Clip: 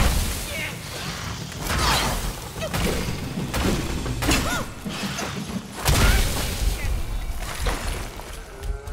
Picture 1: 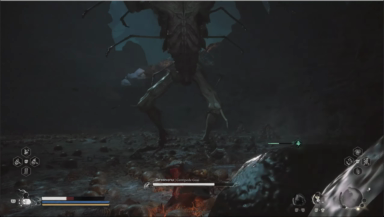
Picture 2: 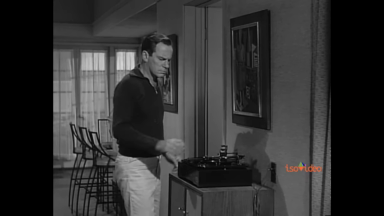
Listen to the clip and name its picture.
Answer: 1